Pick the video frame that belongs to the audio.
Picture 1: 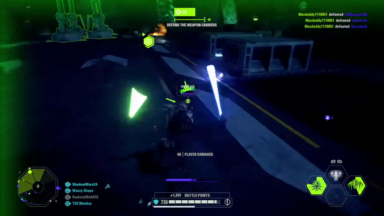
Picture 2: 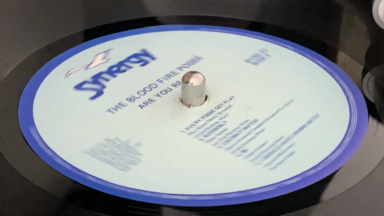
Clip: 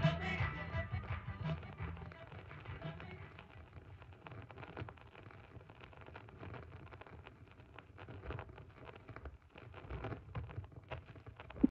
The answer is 2